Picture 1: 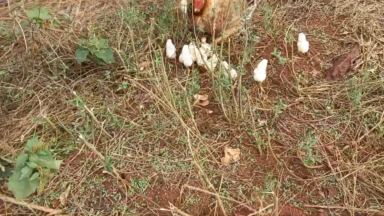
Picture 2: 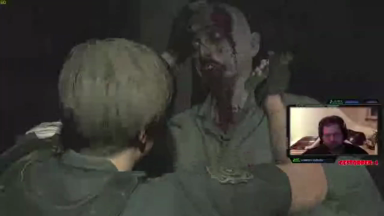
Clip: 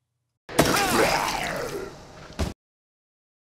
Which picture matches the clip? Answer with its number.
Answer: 2